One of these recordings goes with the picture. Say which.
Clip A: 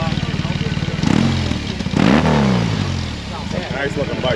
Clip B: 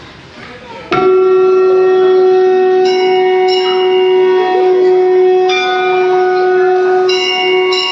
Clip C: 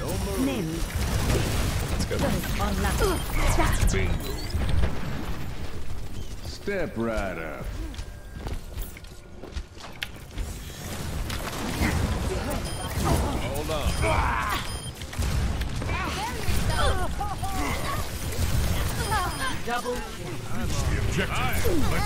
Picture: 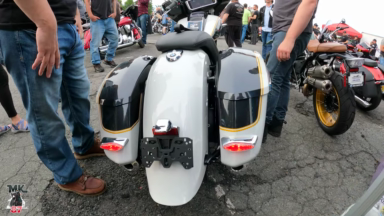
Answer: A